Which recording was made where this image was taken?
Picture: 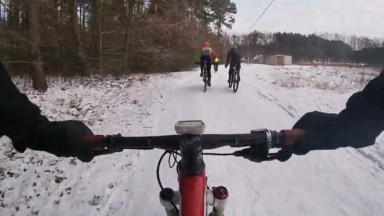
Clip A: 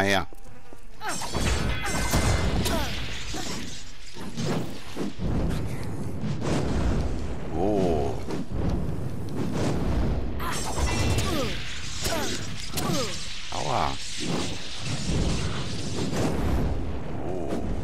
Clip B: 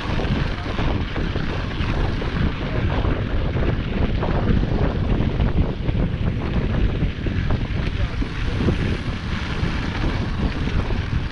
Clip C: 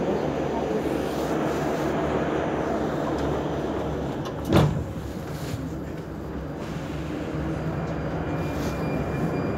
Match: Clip B